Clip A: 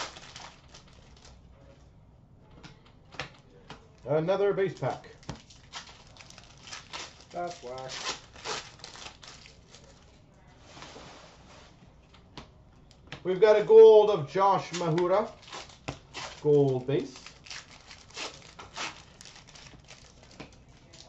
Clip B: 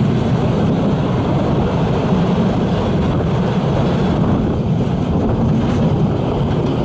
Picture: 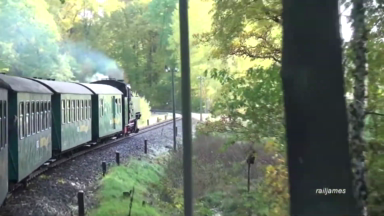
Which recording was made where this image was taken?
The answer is B